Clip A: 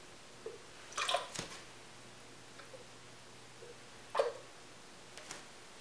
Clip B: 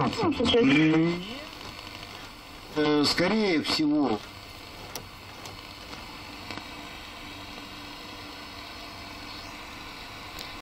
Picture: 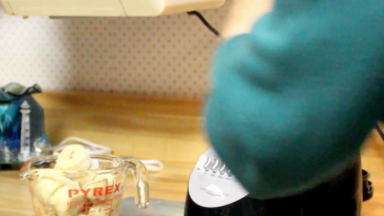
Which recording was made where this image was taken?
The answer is A